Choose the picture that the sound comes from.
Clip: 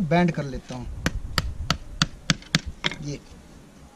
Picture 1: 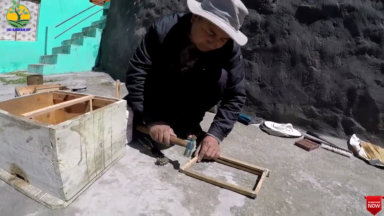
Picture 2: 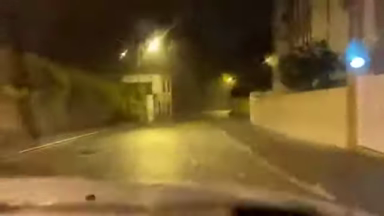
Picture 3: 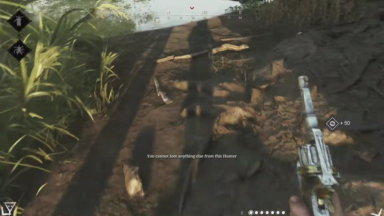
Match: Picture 1